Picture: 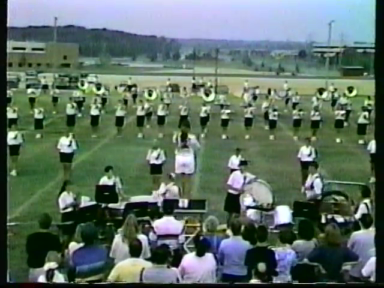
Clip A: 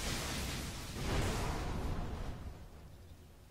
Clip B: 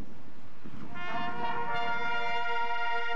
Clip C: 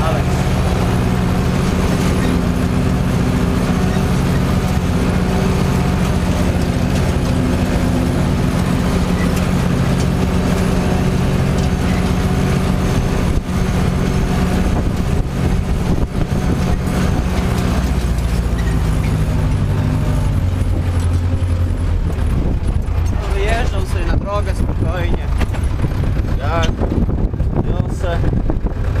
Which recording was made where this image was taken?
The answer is B